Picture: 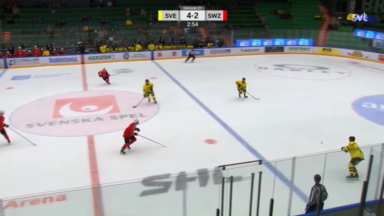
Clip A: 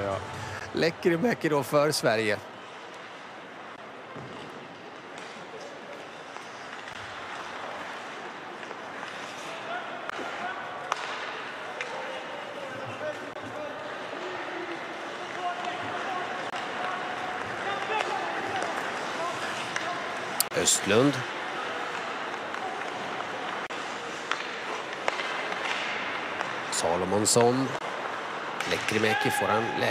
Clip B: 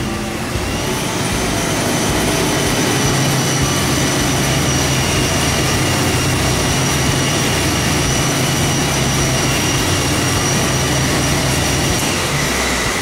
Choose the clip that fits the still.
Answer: A